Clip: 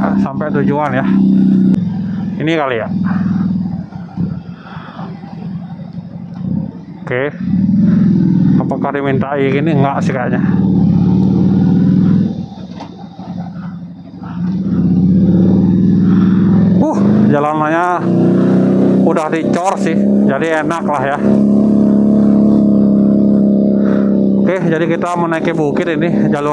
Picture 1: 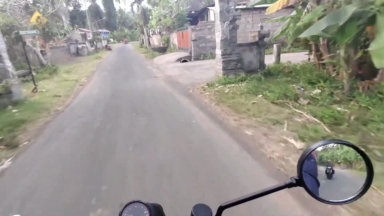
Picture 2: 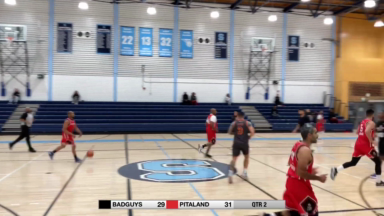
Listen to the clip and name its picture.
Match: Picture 1